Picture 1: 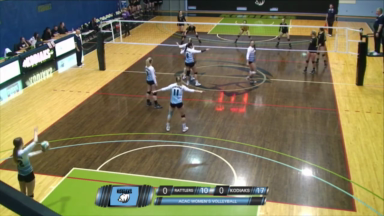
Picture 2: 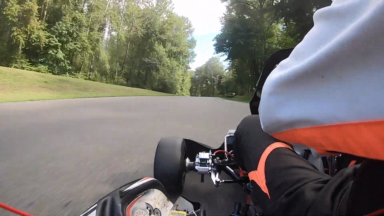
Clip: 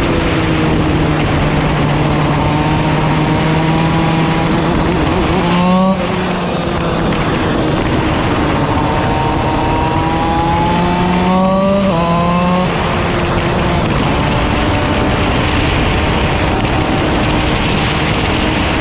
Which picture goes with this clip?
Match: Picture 2